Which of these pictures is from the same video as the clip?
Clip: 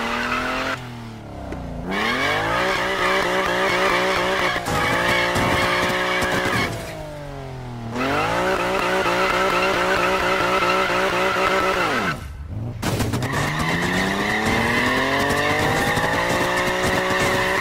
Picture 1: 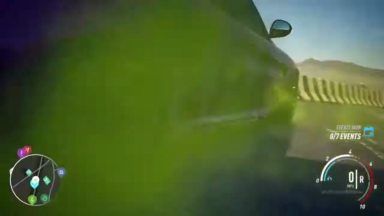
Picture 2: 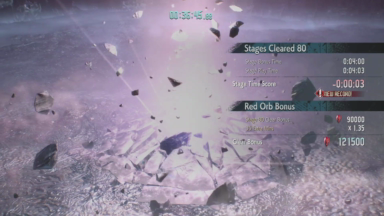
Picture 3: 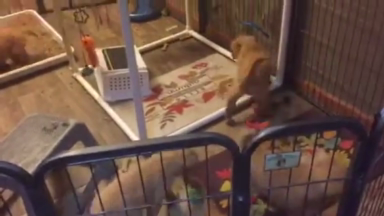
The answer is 1